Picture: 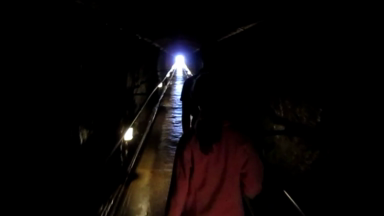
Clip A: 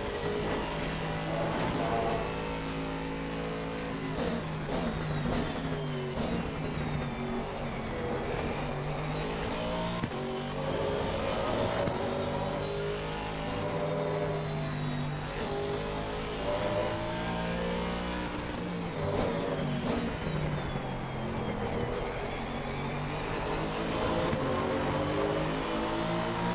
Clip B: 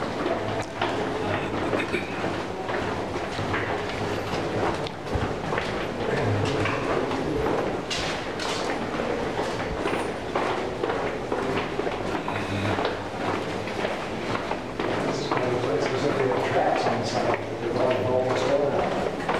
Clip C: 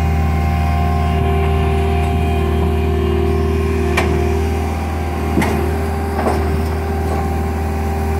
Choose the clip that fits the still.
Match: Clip B